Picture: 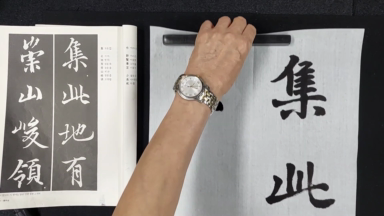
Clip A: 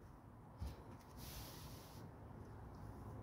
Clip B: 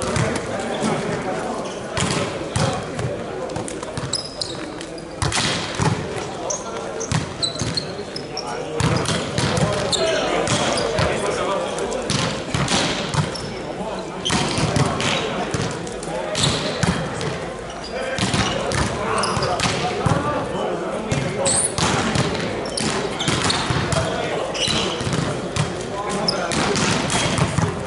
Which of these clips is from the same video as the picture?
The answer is A